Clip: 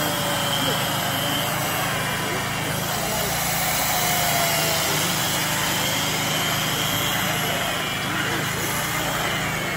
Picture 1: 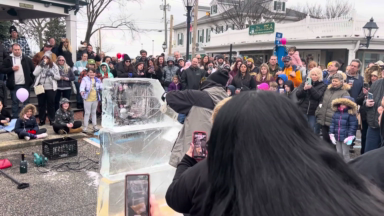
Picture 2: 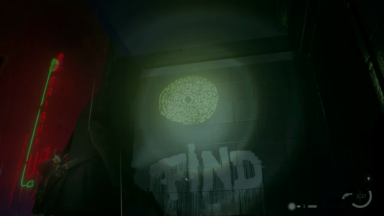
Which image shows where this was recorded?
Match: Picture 1